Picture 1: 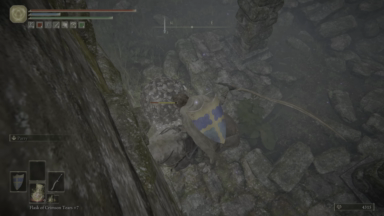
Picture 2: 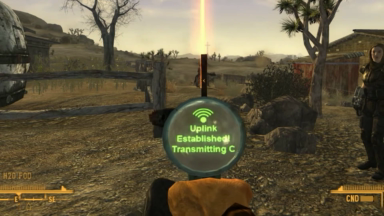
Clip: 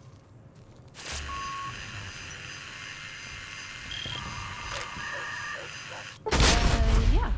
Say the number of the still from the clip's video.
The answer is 2